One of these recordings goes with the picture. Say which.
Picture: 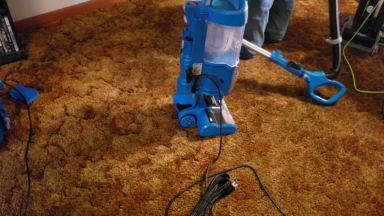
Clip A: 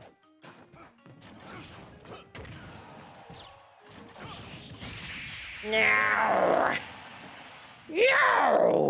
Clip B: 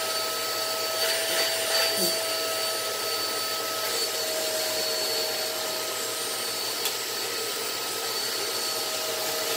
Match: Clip B